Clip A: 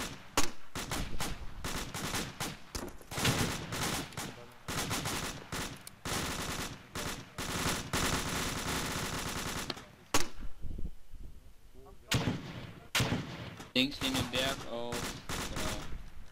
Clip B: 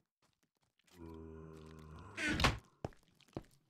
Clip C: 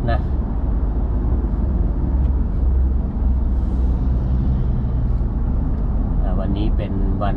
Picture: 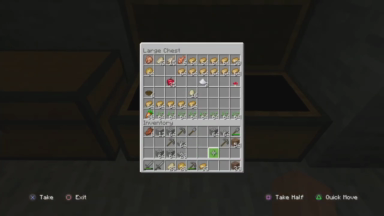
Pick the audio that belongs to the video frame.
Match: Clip B